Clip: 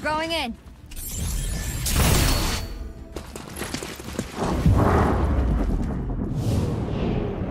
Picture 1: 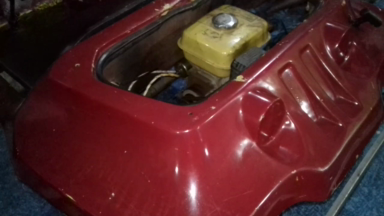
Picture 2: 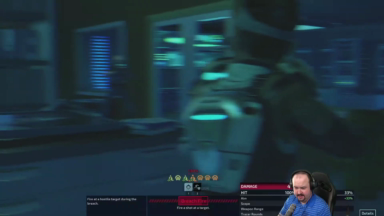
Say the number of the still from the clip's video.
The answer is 2